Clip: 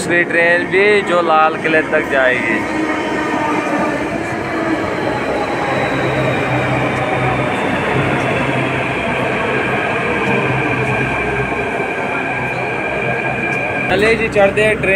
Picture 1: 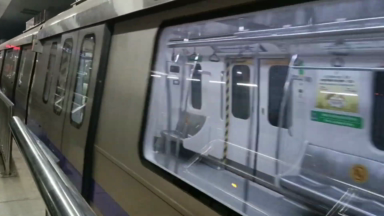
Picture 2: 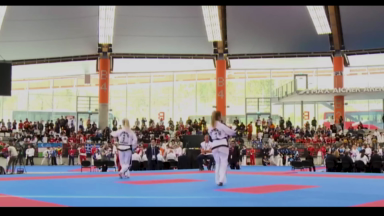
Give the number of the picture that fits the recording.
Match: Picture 1